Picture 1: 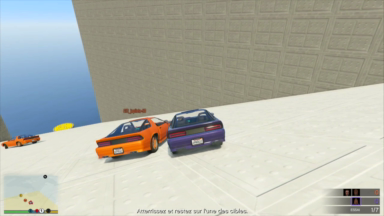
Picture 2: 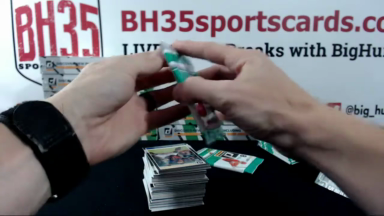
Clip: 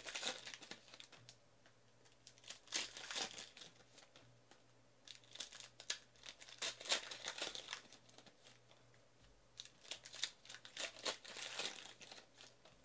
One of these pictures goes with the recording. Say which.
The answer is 2